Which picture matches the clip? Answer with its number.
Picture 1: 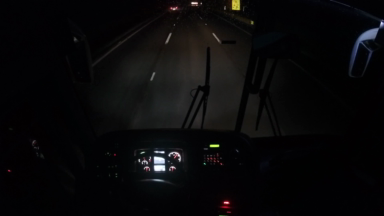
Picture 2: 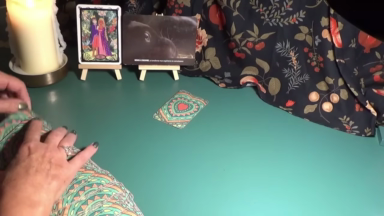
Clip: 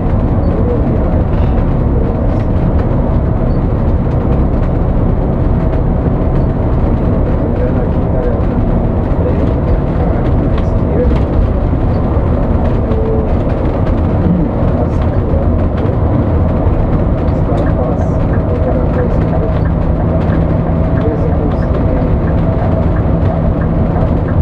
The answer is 1